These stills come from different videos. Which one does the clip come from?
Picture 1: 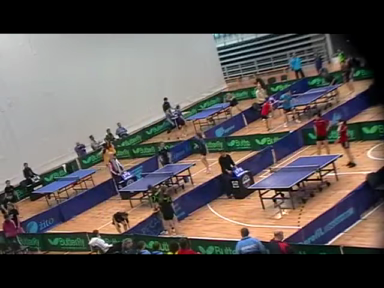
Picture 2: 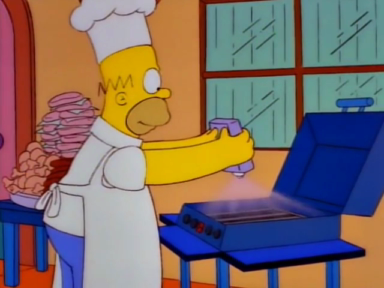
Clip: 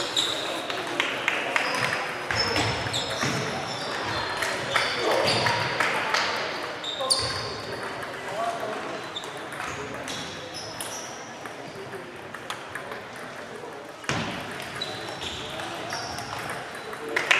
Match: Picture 1